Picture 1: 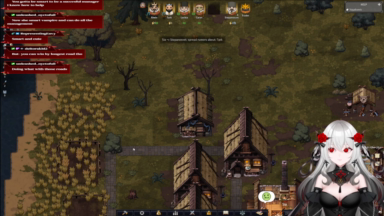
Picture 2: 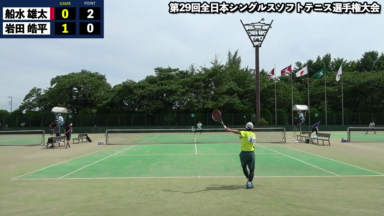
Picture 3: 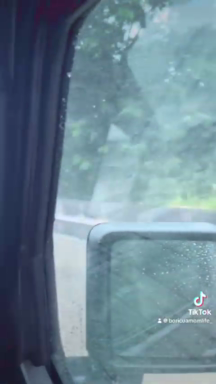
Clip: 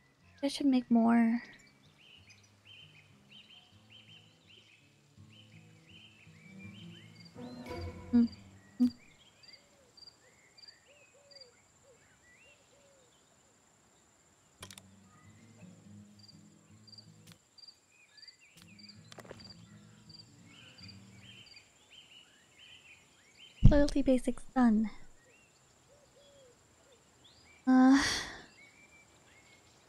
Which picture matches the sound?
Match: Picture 1